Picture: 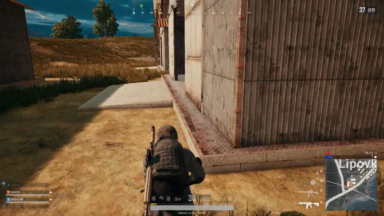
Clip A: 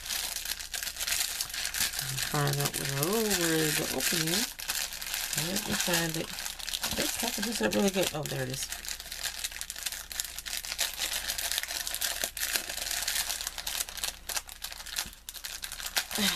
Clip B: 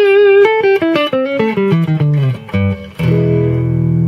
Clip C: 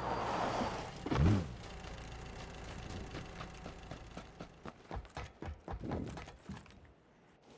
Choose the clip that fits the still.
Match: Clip C